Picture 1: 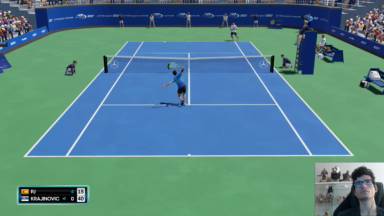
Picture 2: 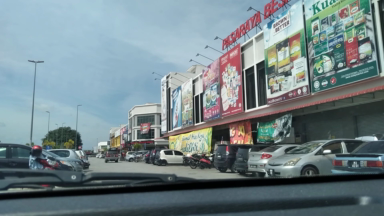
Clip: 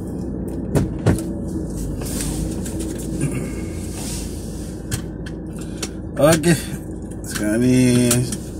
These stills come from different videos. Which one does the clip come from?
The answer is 2